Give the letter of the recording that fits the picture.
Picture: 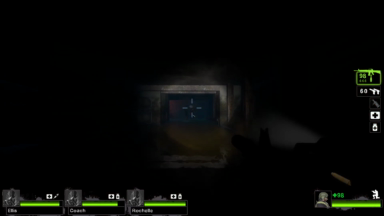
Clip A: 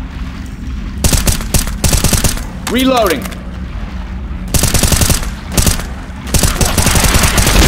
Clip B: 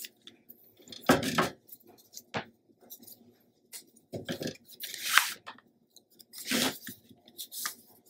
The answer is A